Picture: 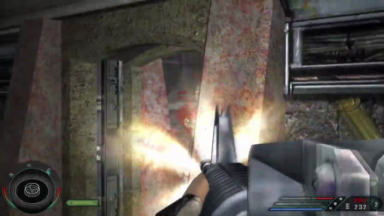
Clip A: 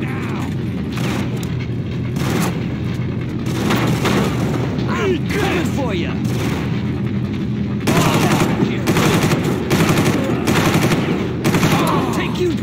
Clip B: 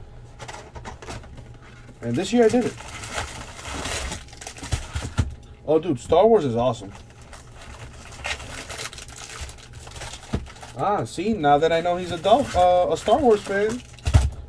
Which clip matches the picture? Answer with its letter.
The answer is A